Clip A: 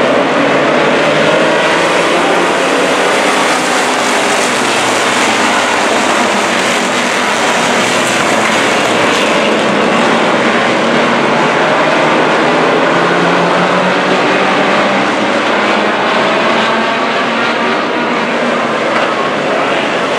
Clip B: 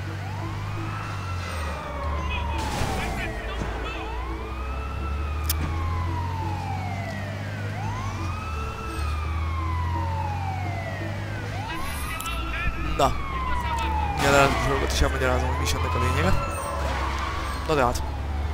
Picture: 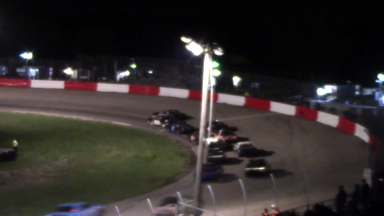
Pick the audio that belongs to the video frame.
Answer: A